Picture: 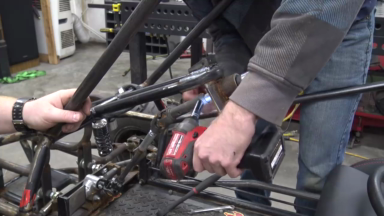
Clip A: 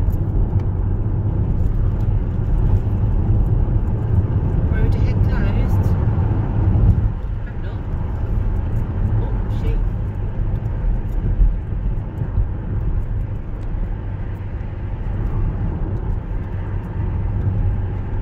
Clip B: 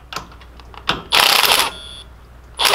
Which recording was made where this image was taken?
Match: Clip B